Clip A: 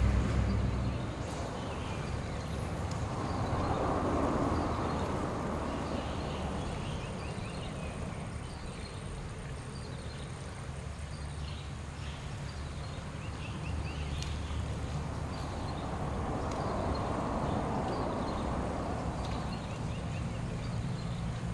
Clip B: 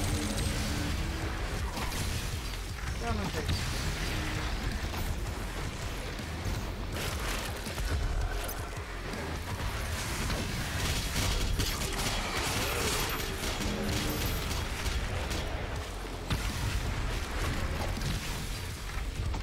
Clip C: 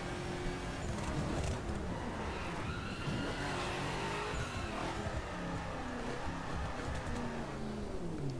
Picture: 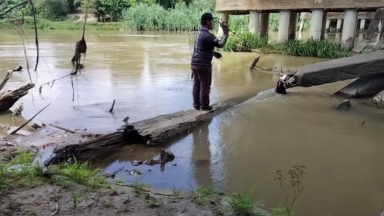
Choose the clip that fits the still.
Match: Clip A